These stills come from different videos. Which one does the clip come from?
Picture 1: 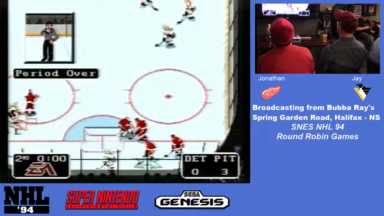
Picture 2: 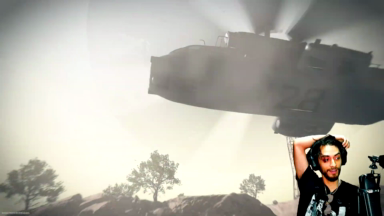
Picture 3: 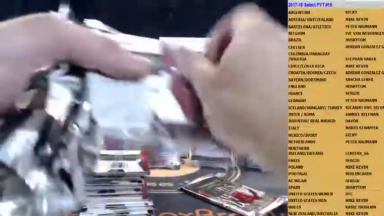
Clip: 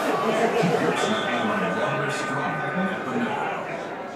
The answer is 1